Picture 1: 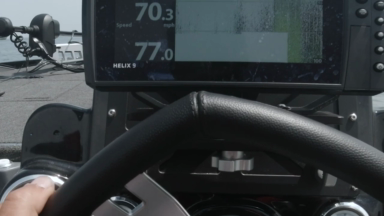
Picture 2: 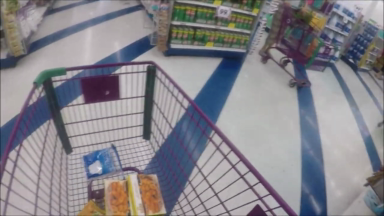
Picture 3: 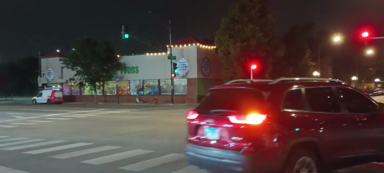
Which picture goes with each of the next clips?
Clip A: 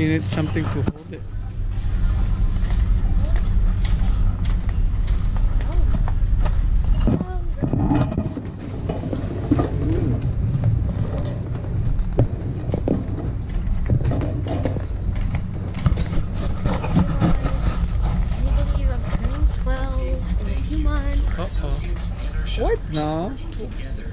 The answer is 2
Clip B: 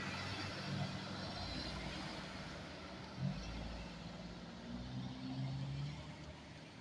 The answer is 3